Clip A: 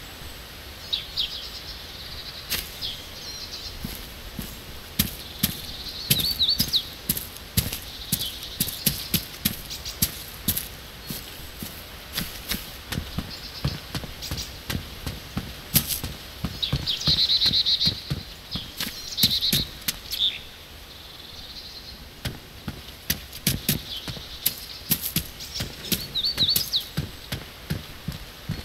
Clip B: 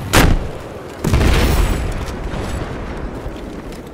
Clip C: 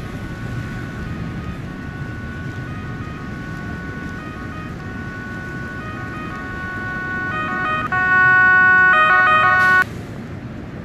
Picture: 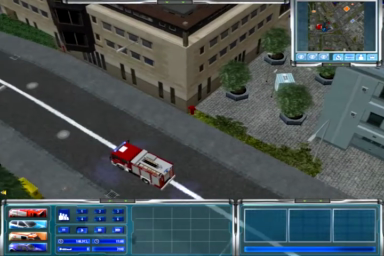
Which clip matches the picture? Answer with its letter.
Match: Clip C